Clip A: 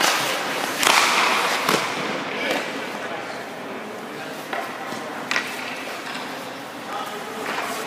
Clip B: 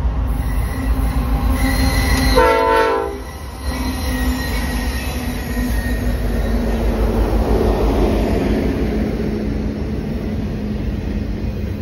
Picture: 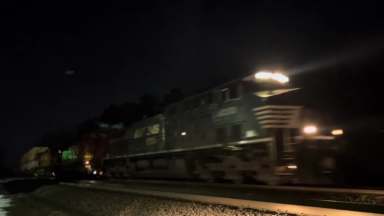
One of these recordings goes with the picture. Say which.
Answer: B